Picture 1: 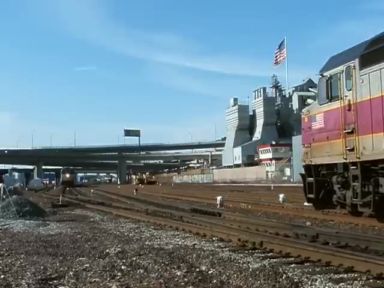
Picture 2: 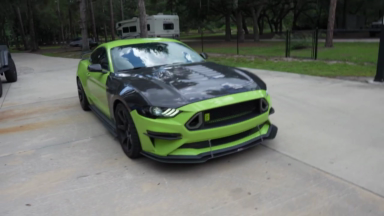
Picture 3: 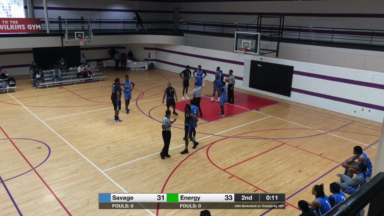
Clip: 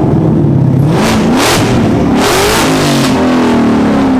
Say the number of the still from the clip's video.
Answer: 2